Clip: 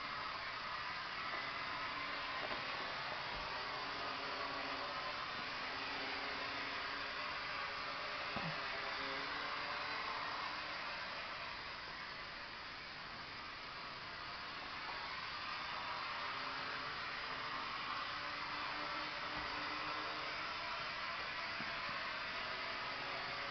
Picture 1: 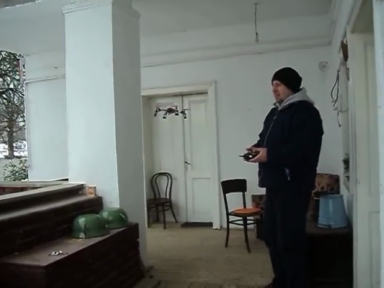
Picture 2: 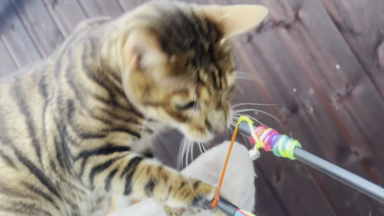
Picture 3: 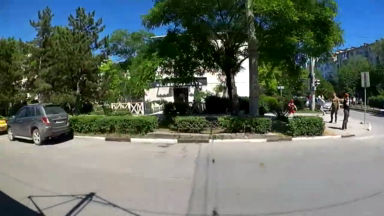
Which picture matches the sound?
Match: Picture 1